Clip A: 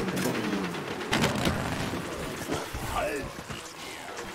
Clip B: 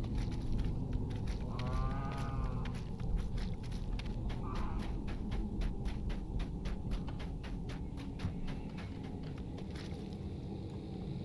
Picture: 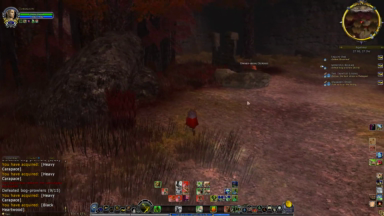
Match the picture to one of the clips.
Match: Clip B